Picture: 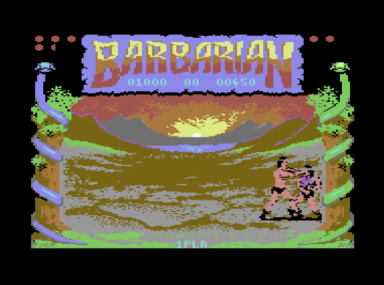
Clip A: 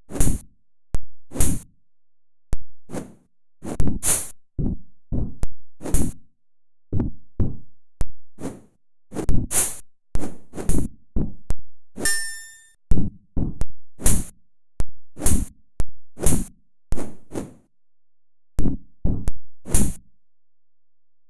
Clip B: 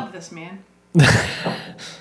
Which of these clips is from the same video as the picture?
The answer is A